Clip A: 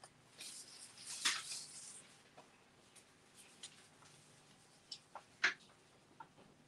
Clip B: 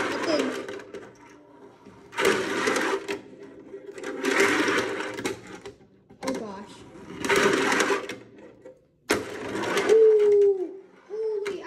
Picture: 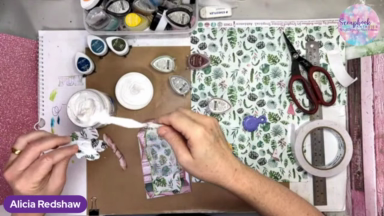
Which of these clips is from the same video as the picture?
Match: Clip A